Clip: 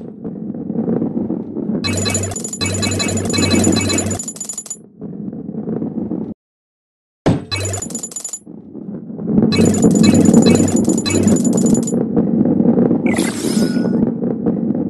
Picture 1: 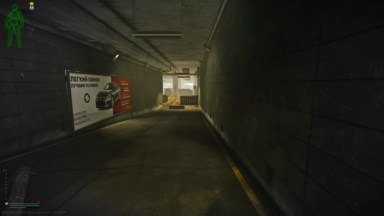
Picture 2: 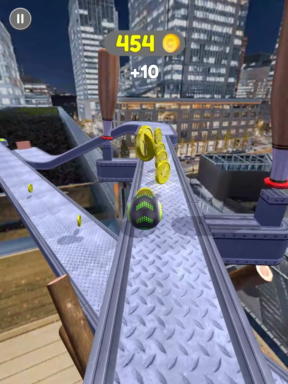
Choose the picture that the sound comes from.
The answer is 2